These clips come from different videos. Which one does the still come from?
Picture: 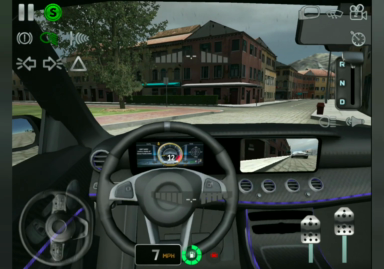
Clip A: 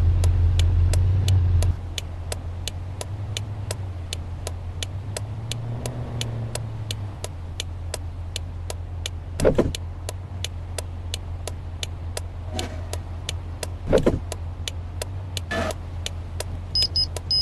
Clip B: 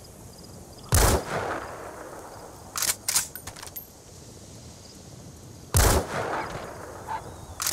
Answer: A